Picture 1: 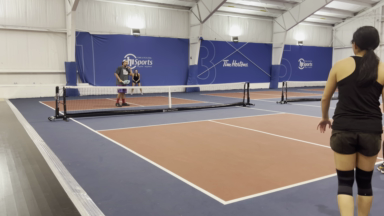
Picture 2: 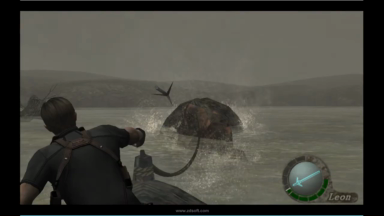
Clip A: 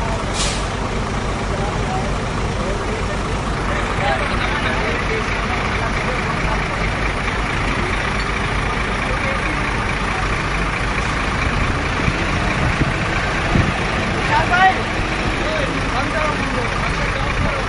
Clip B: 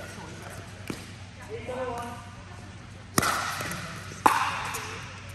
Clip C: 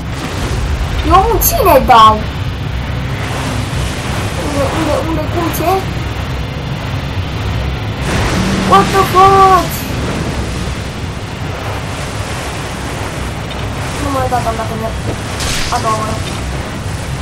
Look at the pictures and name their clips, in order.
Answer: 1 B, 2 C